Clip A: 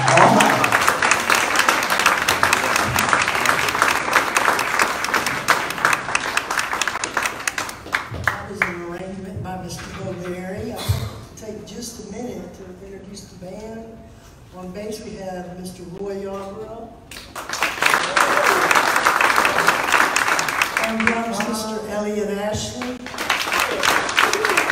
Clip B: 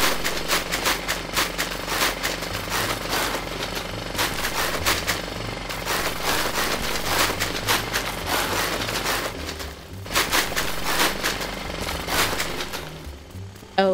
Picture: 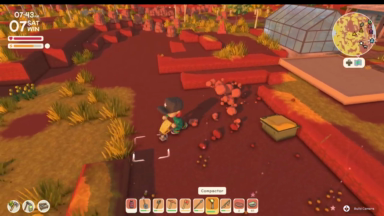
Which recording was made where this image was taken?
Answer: B